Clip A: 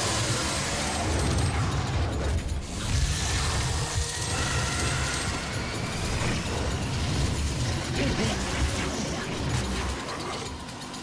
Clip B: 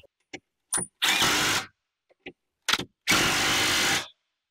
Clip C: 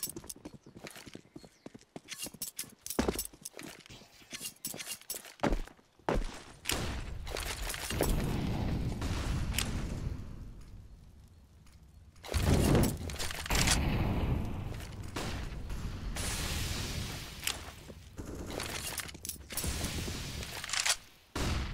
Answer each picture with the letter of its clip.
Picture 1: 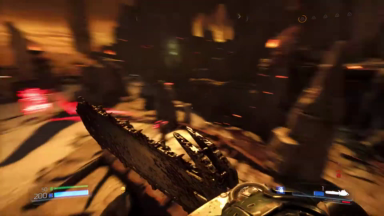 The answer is A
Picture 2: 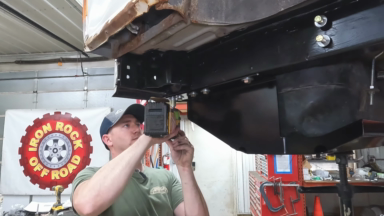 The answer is B